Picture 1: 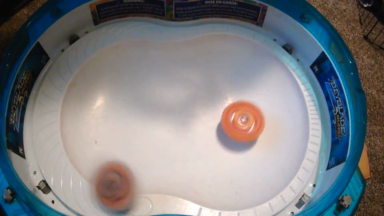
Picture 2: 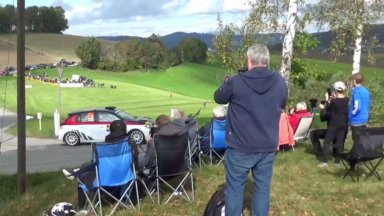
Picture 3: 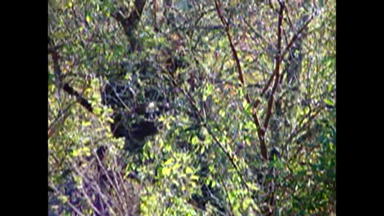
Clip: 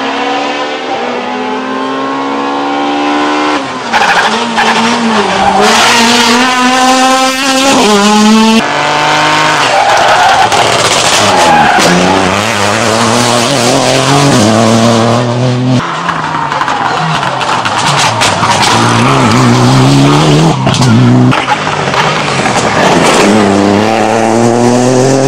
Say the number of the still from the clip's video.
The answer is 2